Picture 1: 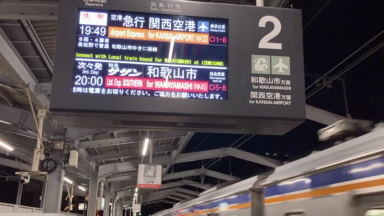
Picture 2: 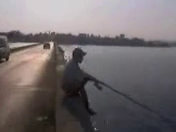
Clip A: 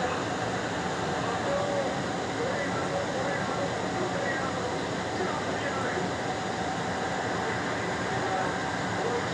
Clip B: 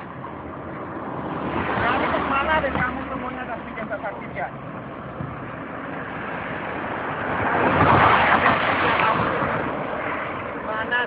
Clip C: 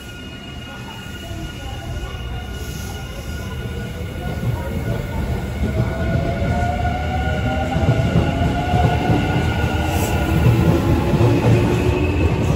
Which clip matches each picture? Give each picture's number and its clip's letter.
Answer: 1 C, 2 B